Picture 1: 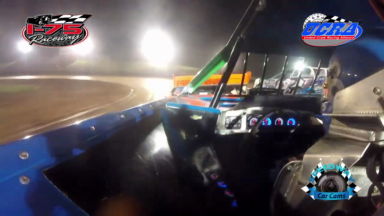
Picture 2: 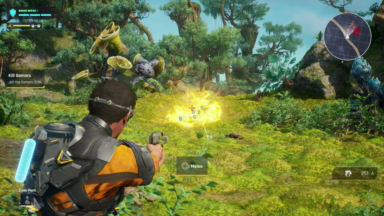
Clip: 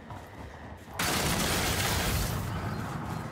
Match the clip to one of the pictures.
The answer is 2